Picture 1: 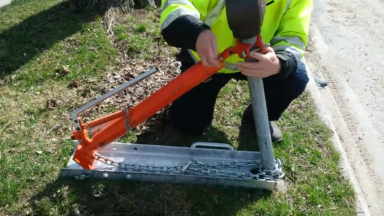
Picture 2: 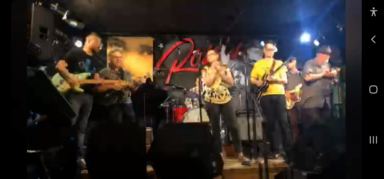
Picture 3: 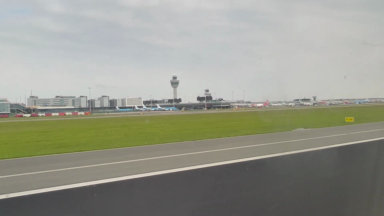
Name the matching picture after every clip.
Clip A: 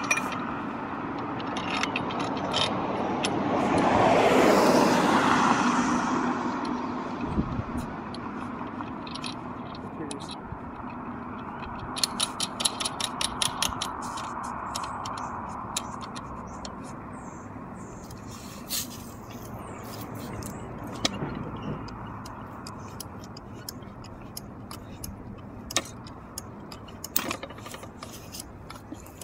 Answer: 1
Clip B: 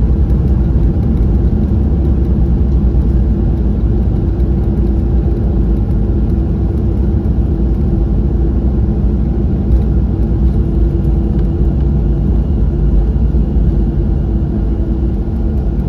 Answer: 3